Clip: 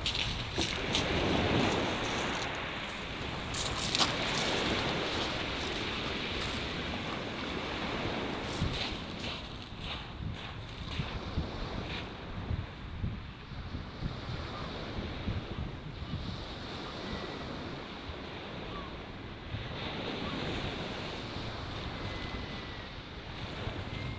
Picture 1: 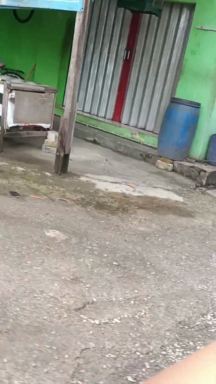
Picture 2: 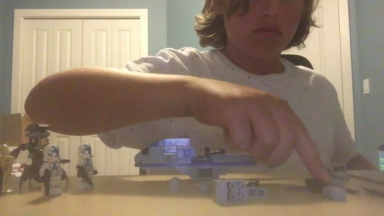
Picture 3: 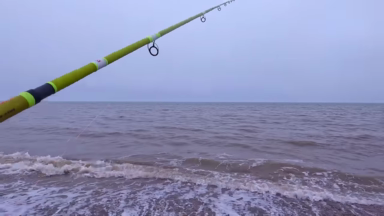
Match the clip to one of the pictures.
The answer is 3